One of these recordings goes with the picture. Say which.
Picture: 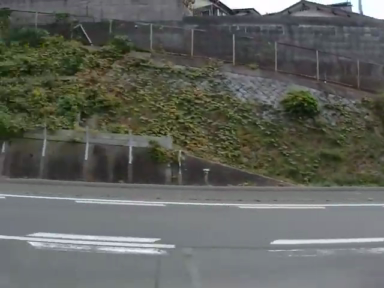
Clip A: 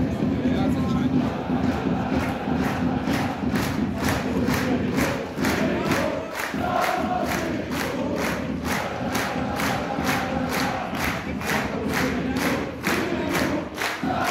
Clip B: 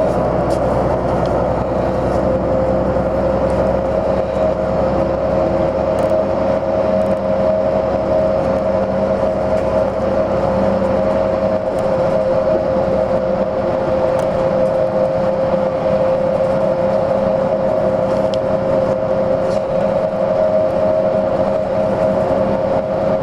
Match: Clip B